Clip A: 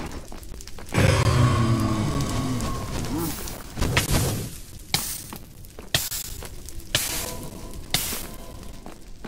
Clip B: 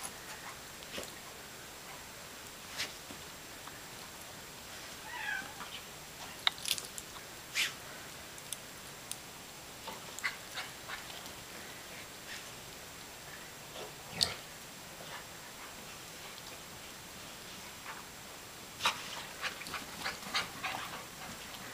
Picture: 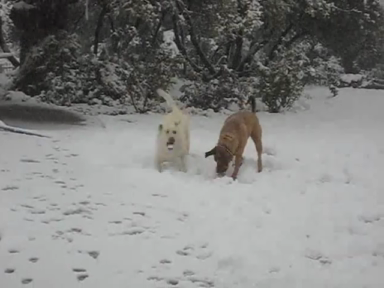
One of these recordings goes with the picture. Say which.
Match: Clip B